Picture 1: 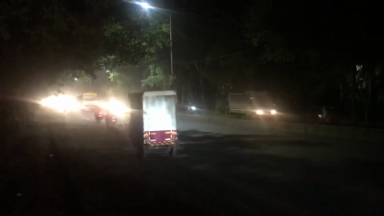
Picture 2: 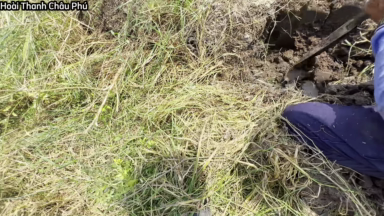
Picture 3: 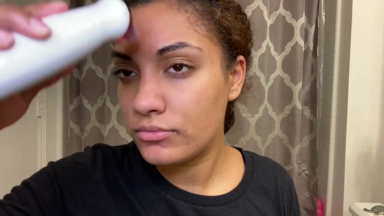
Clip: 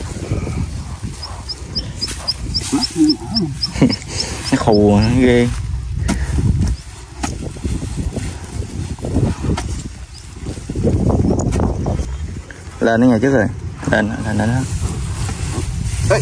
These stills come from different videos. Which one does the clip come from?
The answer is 2